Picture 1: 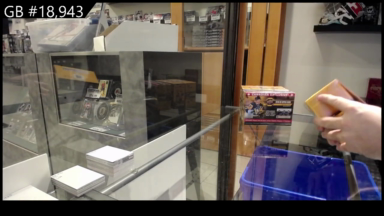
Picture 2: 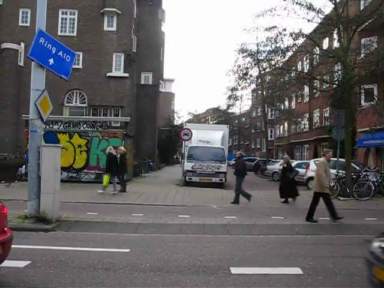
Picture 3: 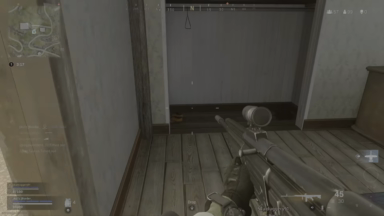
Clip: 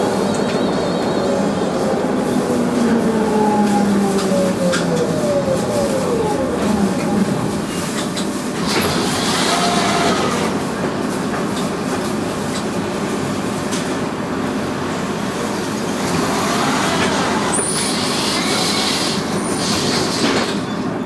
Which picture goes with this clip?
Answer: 2